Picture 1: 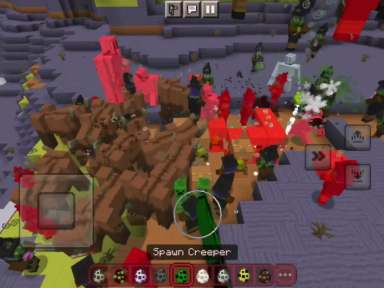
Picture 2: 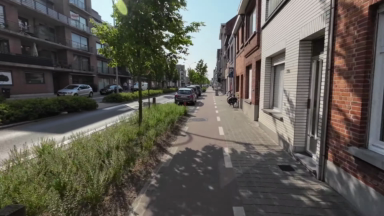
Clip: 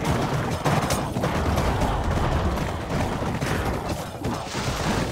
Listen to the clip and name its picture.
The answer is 1